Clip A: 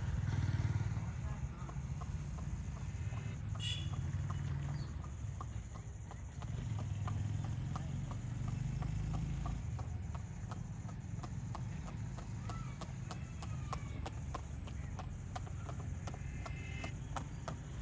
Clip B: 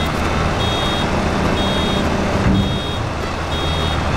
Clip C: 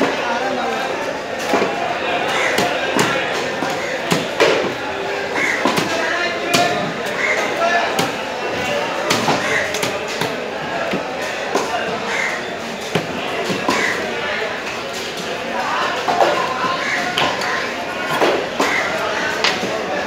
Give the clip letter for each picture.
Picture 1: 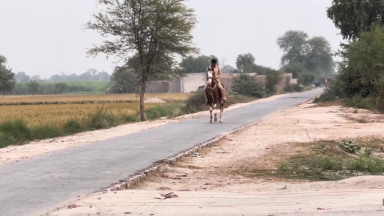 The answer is A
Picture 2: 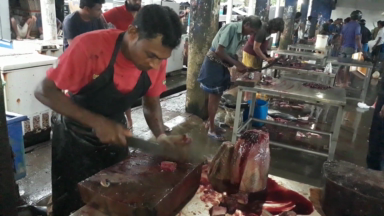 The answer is C